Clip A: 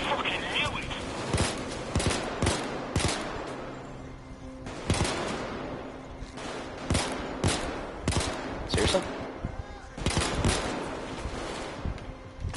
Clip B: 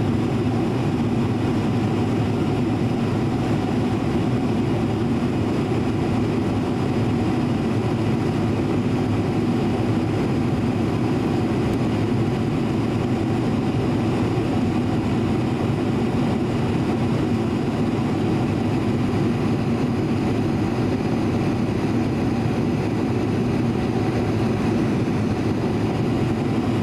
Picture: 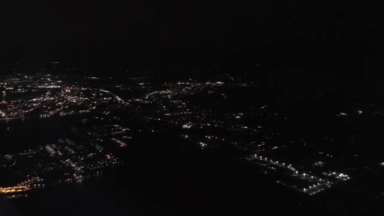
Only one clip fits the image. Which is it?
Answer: B